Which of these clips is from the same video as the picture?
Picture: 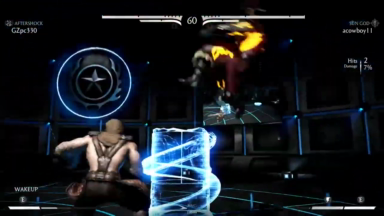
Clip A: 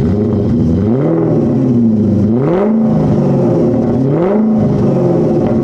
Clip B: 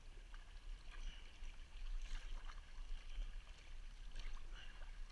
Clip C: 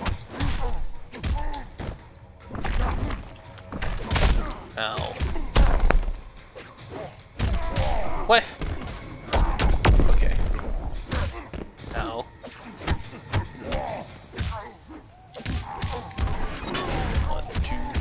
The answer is C